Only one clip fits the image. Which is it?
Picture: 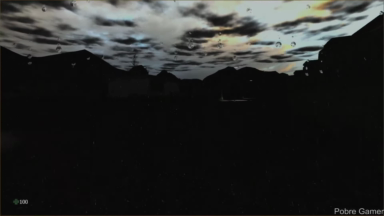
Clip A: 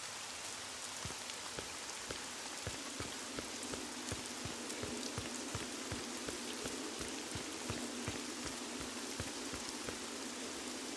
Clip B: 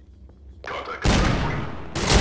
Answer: A